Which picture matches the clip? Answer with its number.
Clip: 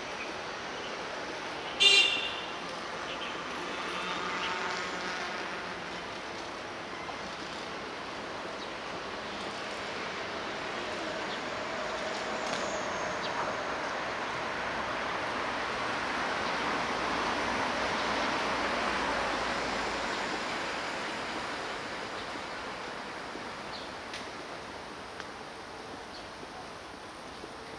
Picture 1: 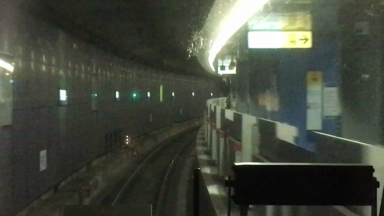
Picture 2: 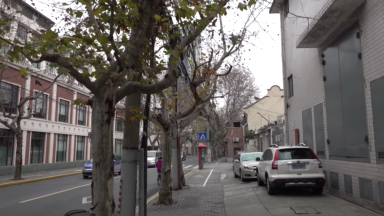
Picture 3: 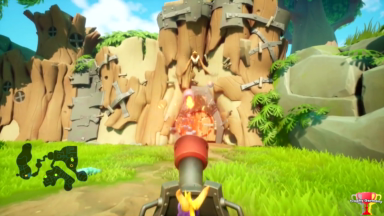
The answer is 2